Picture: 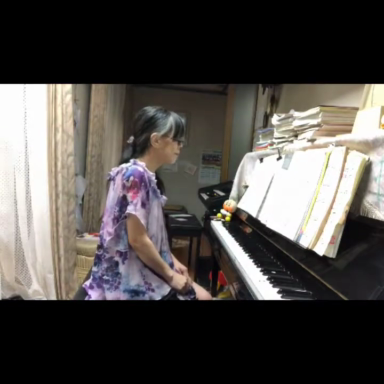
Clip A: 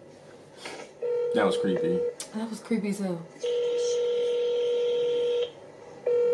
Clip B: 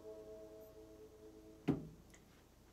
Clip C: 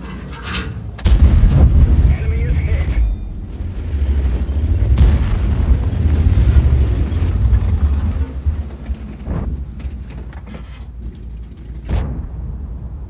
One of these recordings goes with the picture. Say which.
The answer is B